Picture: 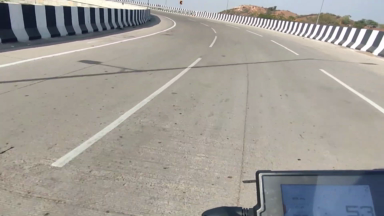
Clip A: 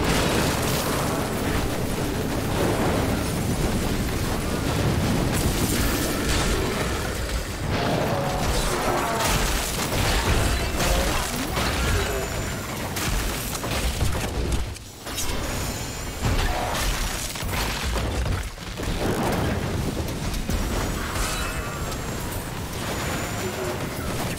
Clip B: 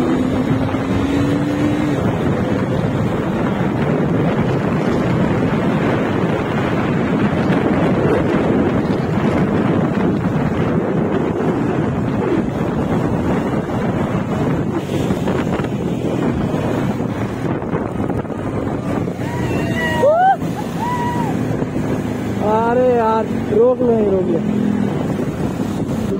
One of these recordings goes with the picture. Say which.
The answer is B